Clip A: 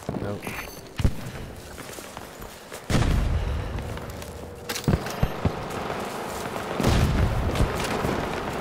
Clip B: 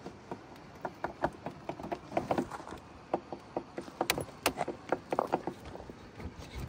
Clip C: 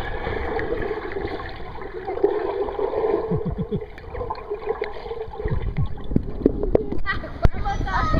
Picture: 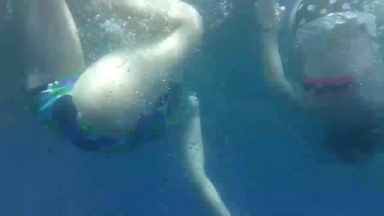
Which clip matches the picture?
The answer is C